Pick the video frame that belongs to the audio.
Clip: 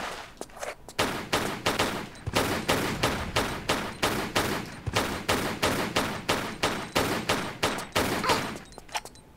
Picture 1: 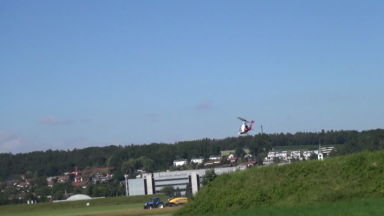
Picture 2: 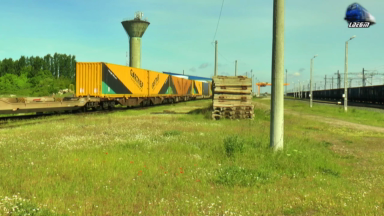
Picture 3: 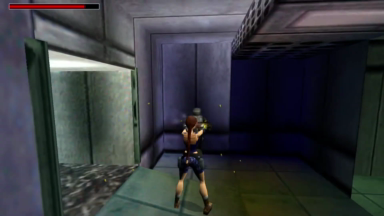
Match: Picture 3